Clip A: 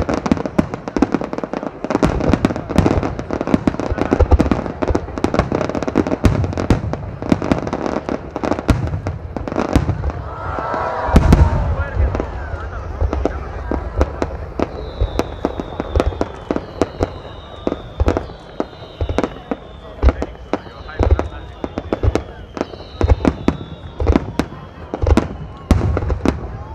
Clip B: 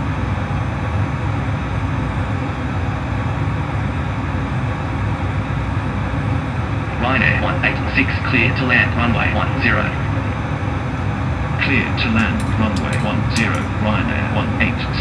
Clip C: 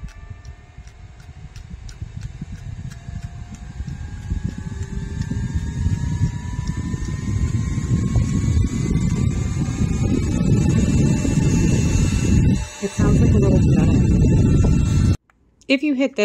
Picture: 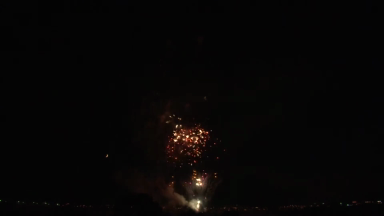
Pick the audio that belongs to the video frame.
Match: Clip A